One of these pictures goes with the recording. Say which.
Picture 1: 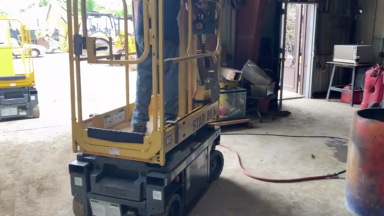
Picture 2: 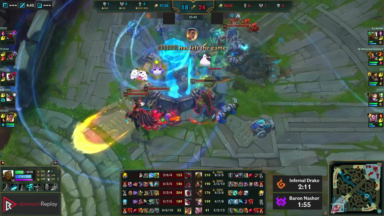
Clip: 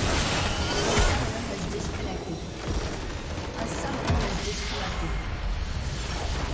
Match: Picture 2